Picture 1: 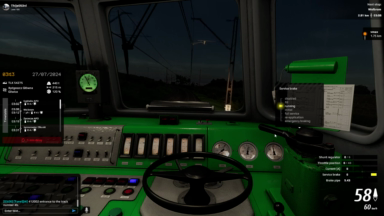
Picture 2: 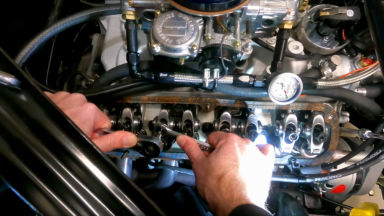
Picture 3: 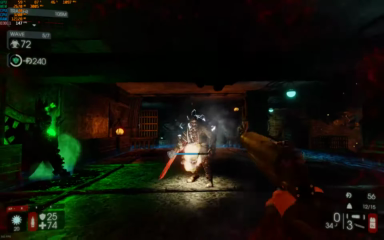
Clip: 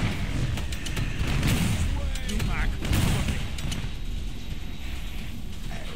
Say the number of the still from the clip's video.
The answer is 3